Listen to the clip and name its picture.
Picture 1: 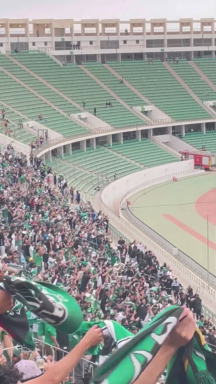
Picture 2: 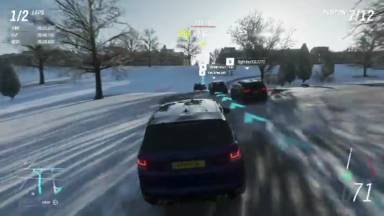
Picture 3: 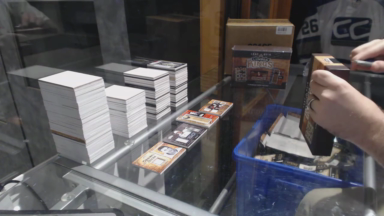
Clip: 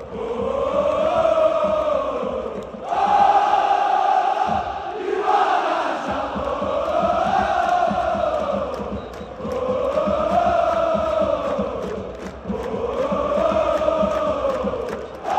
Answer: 1